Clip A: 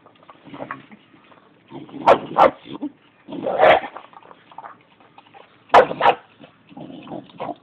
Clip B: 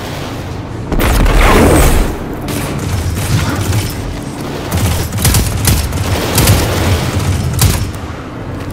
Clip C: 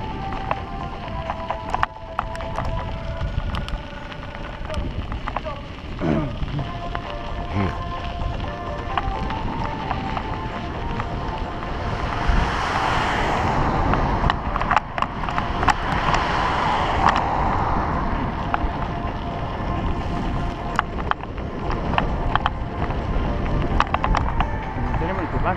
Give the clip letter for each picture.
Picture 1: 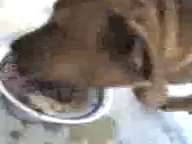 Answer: A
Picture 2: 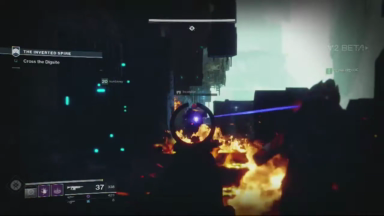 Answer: B